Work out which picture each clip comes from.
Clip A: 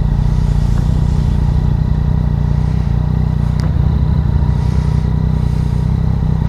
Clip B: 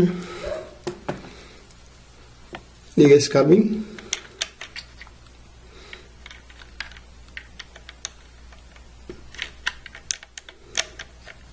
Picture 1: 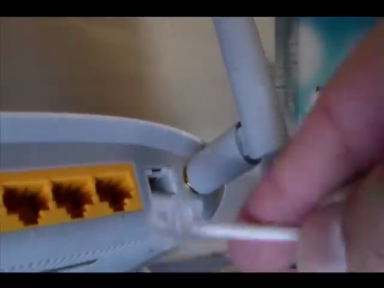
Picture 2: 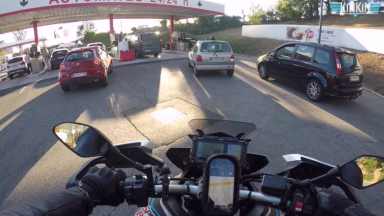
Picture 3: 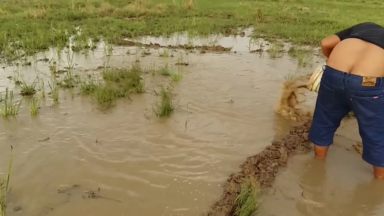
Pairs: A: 2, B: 1